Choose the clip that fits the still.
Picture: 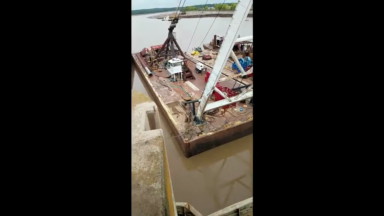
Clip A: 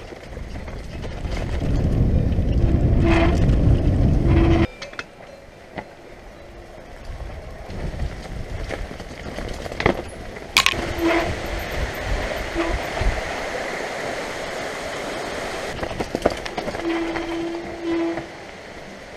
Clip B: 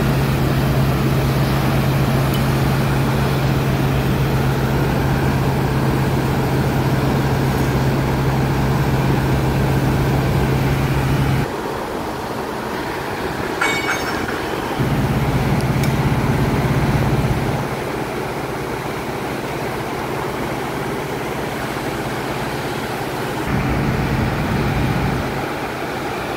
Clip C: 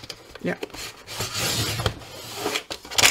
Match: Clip B